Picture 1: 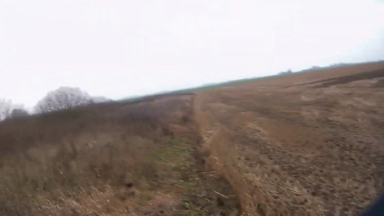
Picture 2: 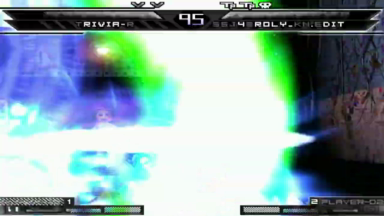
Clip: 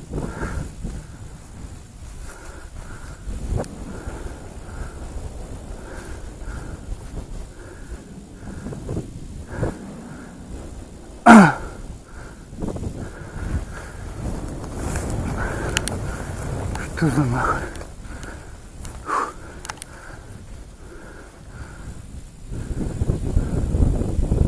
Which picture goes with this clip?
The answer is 1